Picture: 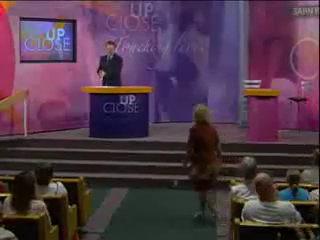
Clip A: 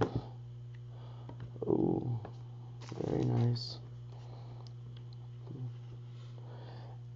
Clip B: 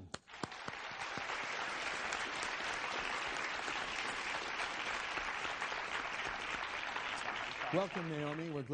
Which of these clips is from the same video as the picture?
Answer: B